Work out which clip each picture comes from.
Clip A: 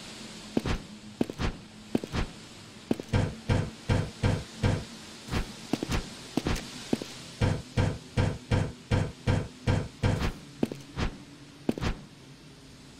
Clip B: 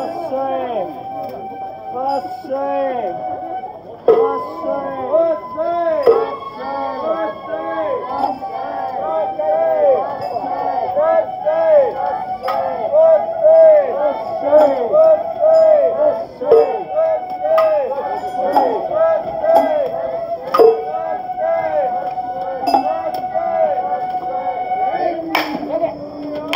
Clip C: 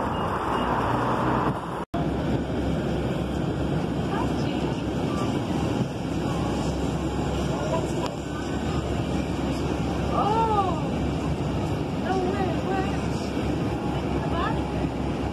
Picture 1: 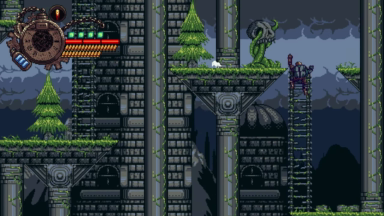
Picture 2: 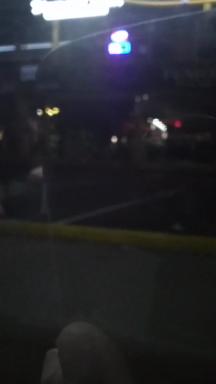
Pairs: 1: A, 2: C